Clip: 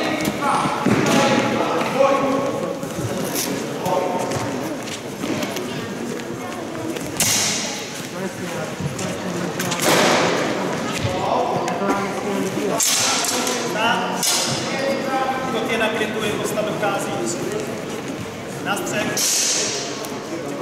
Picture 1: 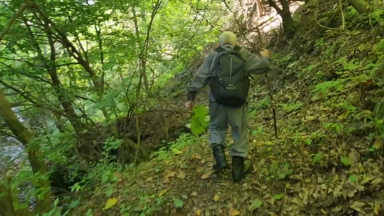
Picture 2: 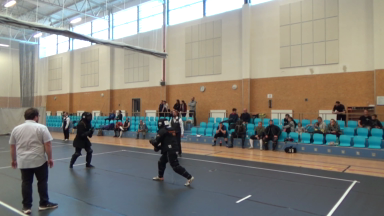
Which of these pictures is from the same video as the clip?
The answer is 2